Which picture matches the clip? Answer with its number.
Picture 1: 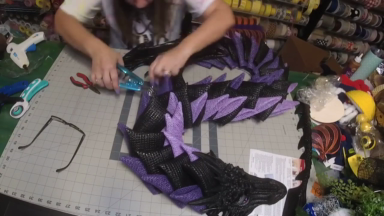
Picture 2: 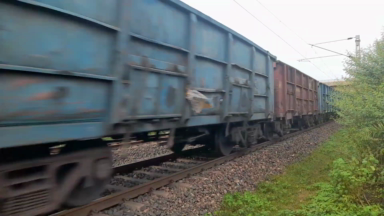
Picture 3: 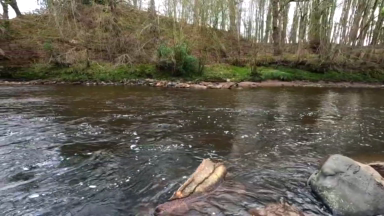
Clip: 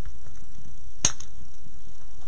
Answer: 1